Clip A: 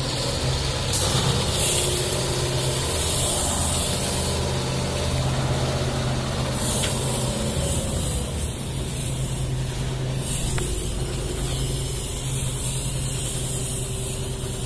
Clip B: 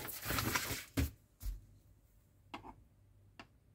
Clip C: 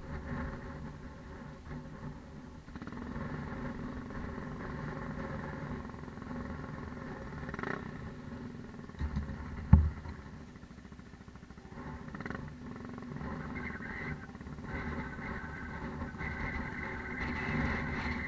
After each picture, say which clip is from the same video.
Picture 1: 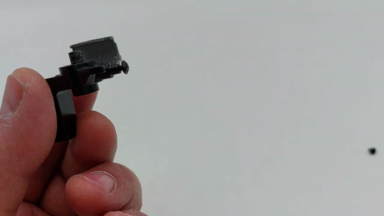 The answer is B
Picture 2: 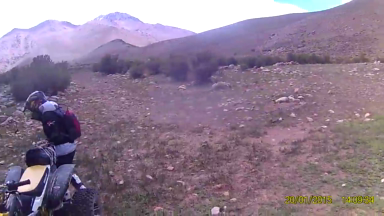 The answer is C